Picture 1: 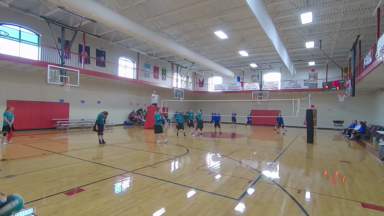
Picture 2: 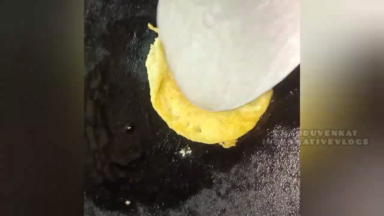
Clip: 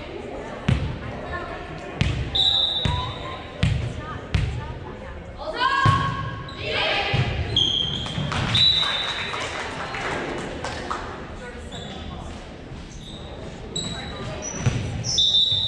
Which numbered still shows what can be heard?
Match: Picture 1